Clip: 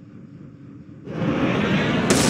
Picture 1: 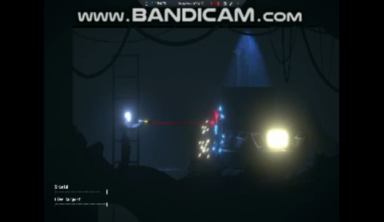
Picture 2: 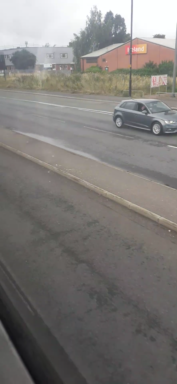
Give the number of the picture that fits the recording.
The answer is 1